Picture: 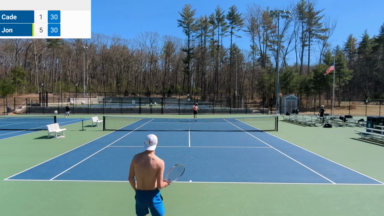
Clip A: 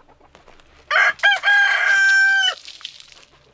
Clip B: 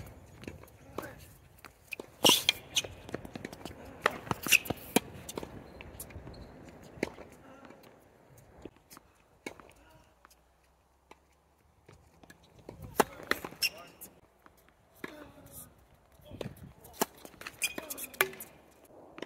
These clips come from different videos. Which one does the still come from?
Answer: B